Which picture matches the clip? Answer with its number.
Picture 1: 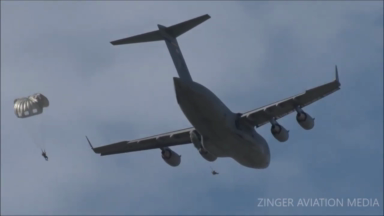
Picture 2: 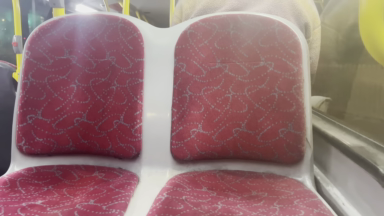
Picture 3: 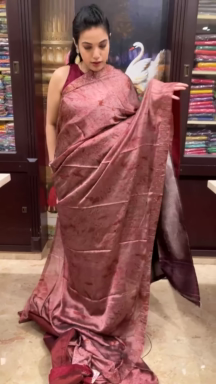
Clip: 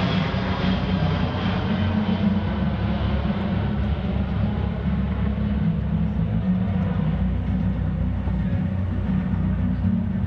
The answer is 1